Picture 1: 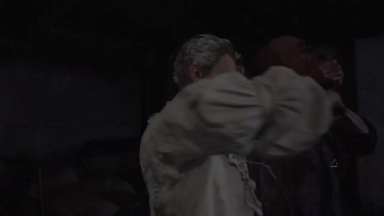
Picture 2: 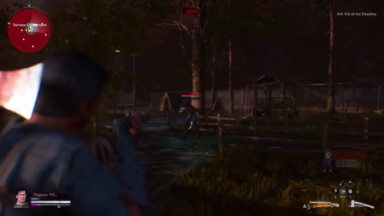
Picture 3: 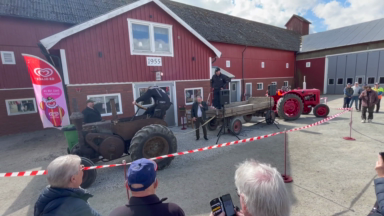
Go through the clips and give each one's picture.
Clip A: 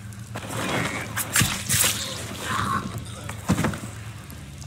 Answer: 1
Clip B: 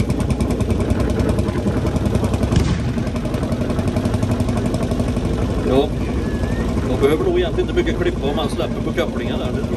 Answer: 3